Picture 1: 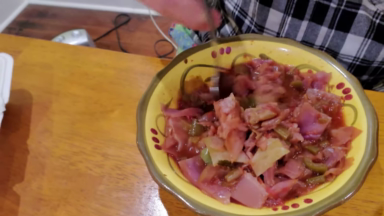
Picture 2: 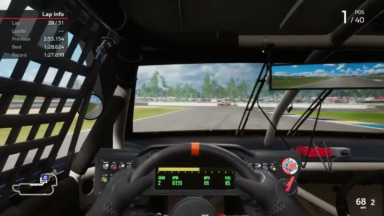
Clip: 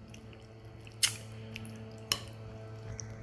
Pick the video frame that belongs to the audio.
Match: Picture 1